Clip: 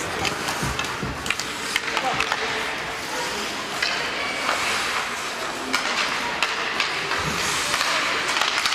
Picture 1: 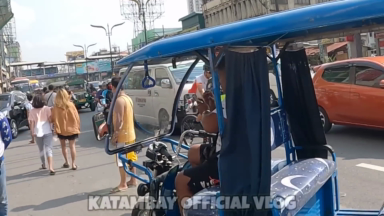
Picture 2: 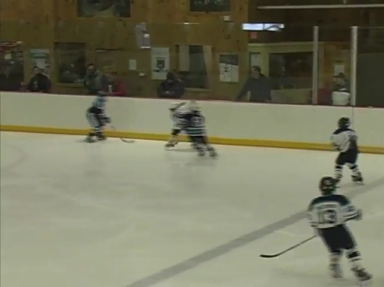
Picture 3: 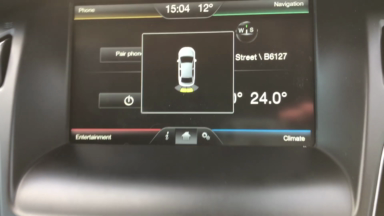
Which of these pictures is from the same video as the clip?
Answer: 2